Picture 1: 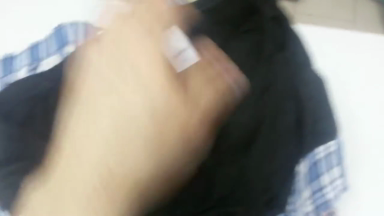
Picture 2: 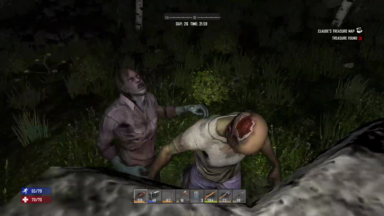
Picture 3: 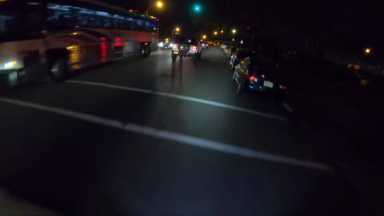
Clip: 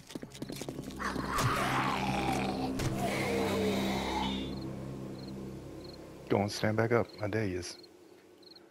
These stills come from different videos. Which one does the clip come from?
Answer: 2